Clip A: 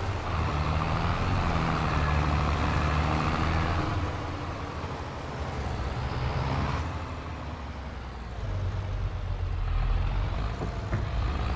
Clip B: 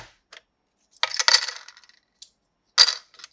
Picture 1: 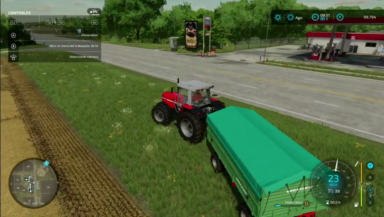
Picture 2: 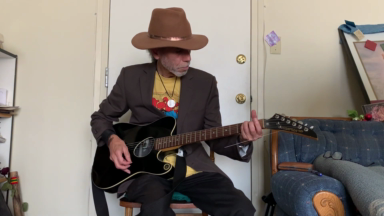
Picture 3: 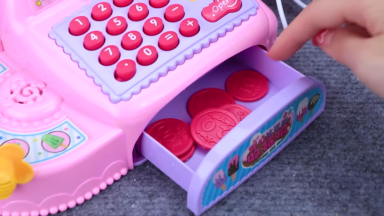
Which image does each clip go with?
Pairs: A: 1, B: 3